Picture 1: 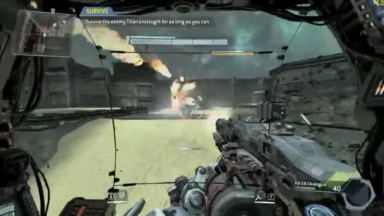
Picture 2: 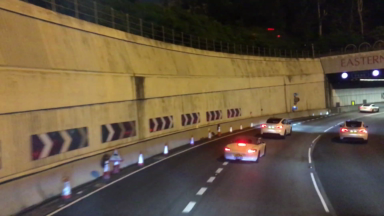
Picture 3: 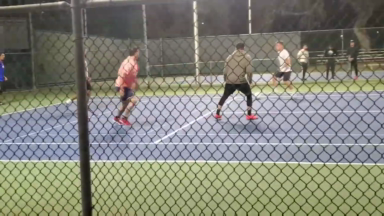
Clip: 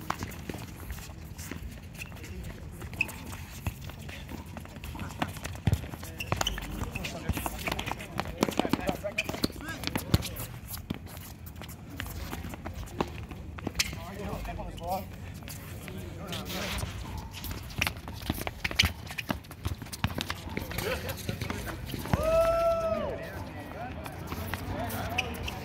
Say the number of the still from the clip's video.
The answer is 3